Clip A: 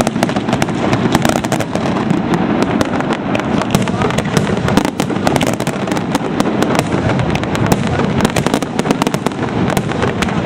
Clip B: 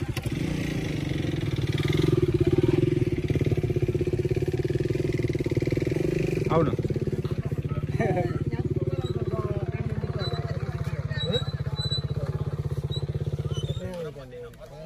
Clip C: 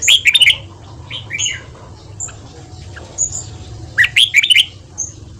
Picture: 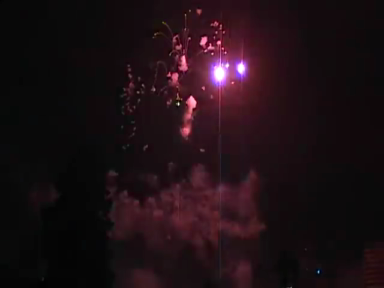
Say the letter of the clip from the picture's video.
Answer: A